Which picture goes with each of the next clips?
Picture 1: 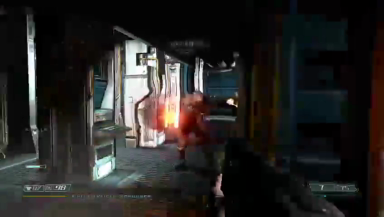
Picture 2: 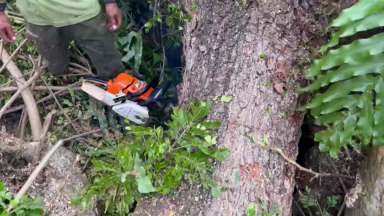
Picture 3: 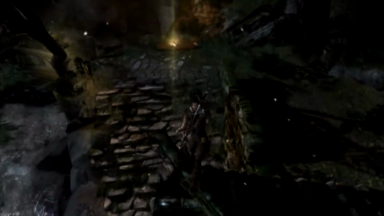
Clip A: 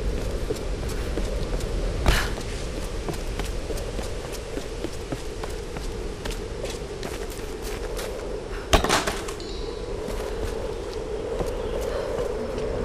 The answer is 3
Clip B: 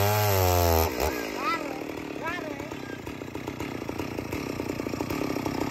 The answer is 2